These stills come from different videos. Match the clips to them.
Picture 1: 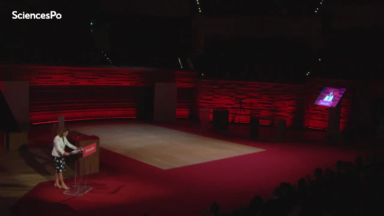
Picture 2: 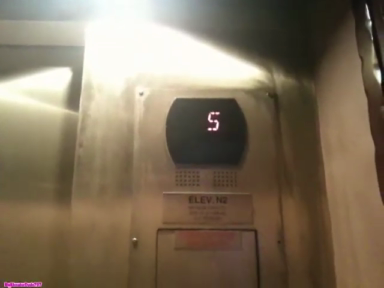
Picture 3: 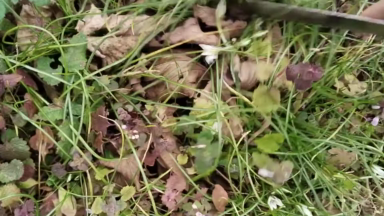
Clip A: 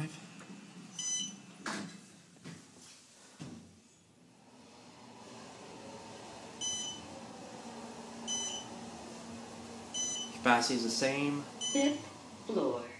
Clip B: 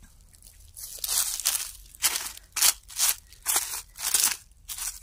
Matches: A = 2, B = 3